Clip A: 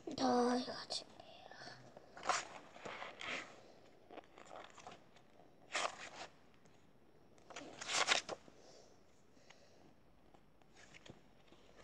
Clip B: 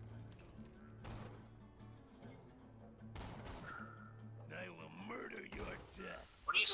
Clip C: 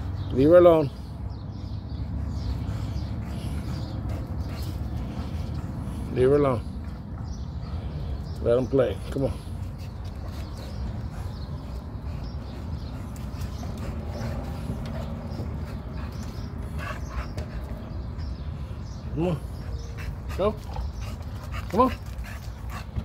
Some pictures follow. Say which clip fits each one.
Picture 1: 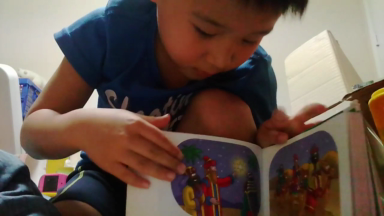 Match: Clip A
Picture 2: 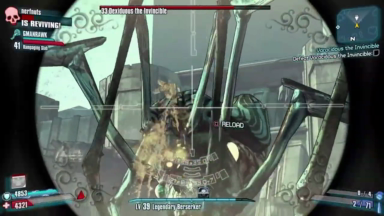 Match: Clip B